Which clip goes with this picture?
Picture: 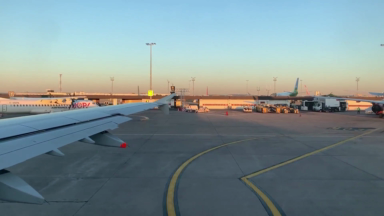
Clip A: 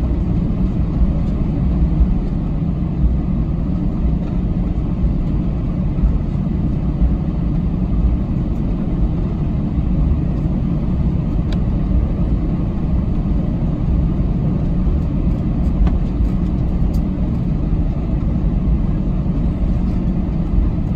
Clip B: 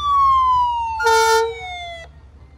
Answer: A